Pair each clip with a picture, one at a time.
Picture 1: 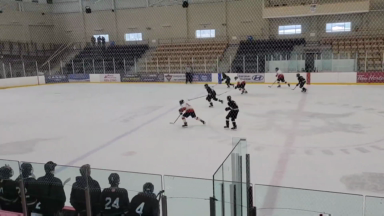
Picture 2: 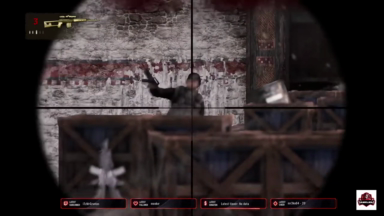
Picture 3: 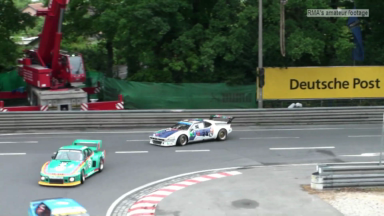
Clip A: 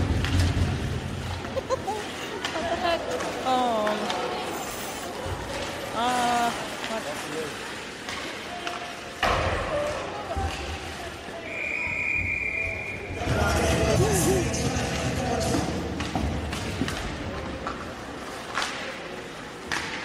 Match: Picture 1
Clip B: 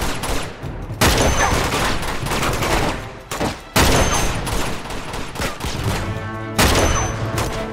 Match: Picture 2